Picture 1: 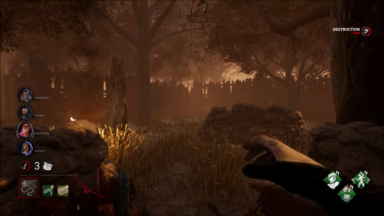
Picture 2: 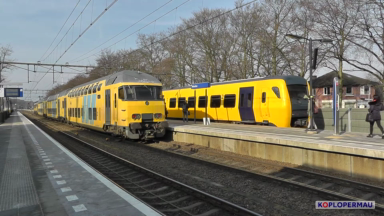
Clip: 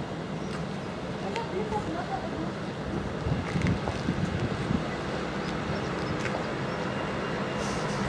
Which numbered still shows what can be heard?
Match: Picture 2